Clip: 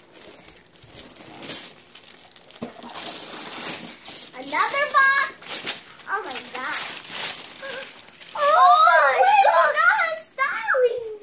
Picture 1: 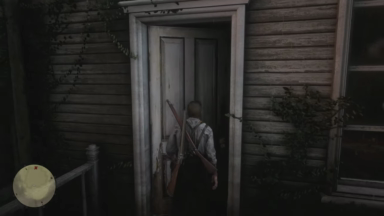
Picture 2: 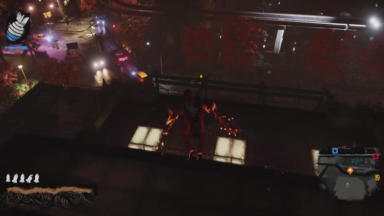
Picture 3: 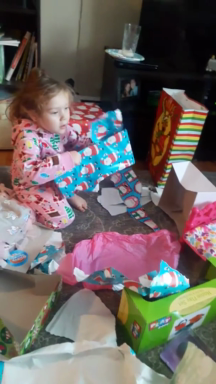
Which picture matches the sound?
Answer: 3